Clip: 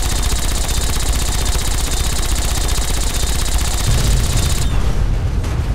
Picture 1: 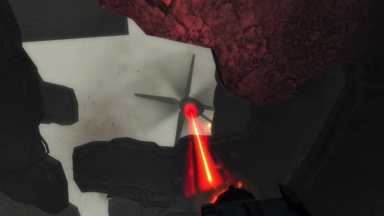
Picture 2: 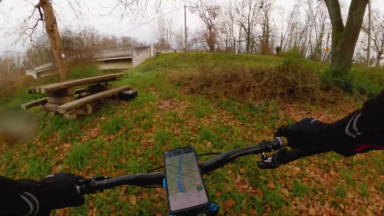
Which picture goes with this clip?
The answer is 1